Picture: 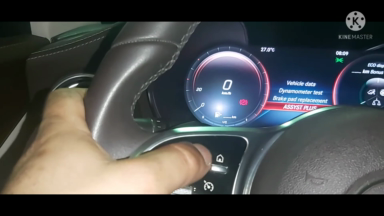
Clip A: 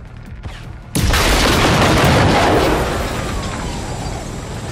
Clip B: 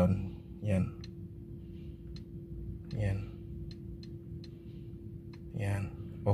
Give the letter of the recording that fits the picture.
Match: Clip B